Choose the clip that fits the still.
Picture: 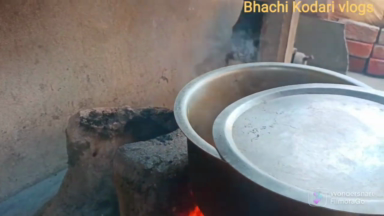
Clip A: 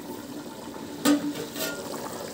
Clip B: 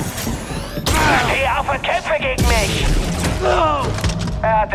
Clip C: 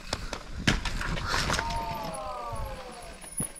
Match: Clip A